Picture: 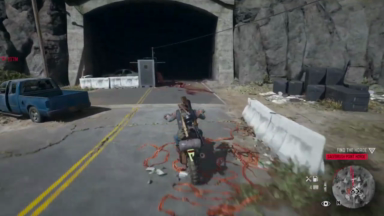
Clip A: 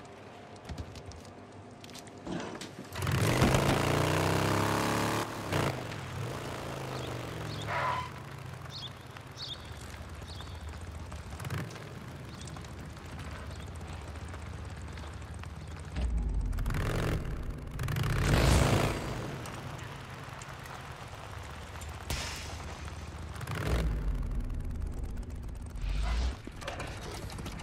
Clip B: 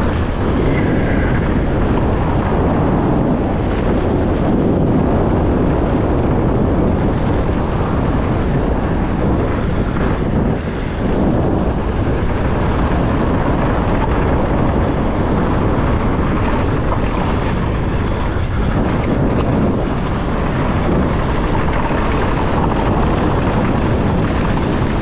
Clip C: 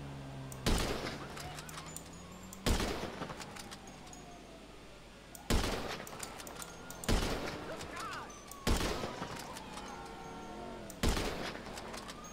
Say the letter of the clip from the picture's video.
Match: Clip A